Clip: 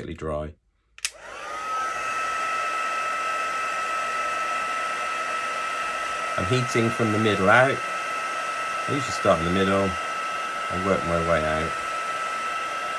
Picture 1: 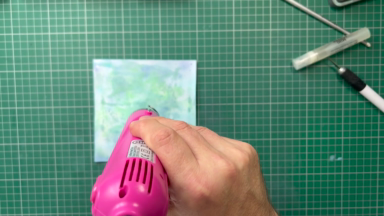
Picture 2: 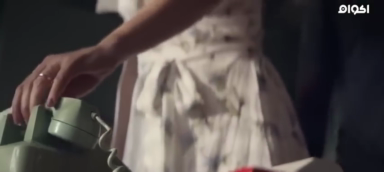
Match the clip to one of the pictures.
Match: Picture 1